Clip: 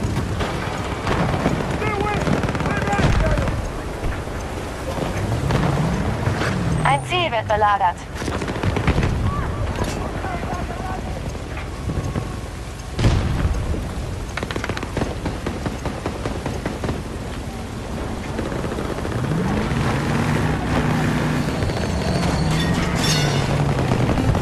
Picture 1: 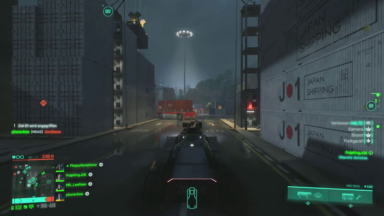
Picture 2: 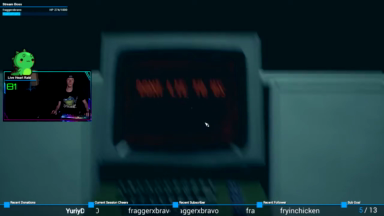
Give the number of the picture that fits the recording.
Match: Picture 1